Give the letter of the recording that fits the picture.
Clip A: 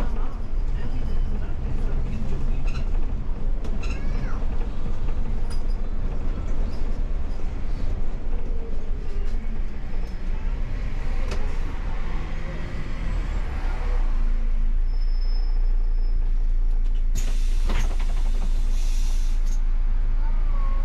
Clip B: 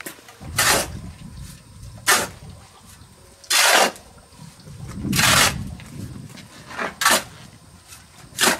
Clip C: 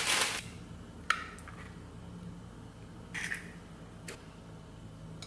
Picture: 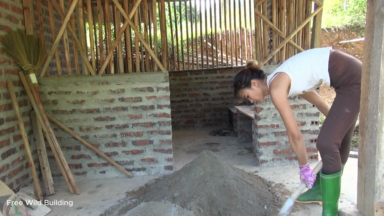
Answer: B